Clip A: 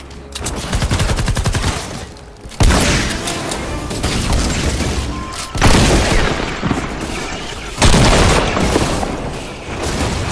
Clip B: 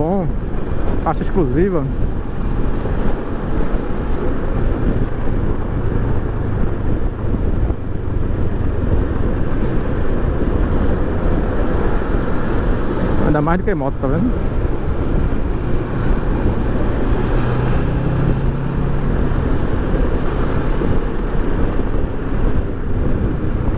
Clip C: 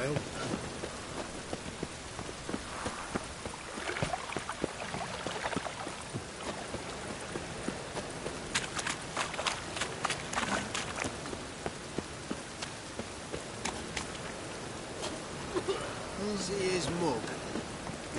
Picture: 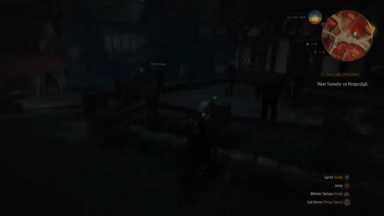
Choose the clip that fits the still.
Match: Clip C